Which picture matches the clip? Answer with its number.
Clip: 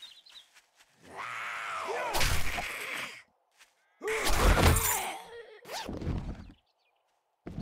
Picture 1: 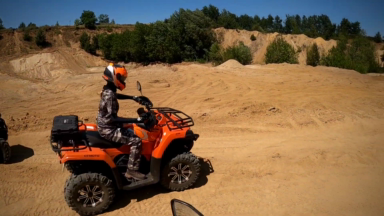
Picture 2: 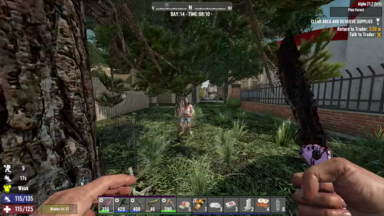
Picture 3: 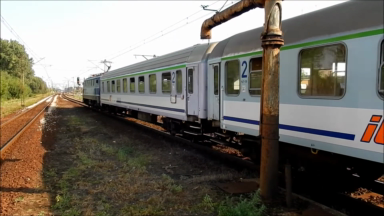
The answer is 2